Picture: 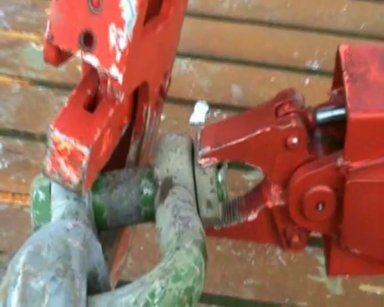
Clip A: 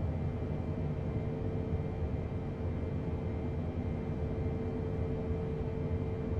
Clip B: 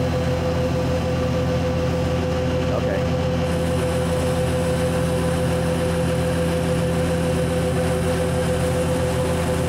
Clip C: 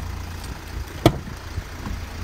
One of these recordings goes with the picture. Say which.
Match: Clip B